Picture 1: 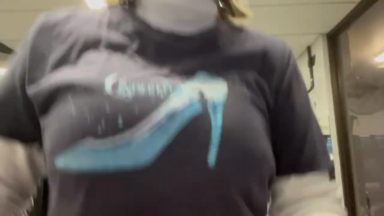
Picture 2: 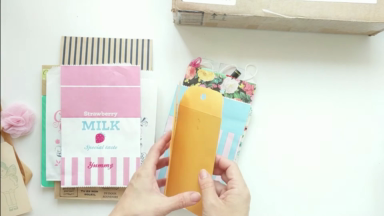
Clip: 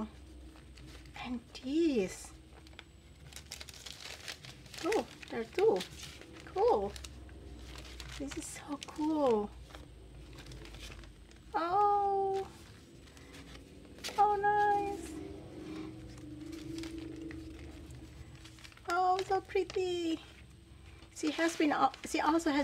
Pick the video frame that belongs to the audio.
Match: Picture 2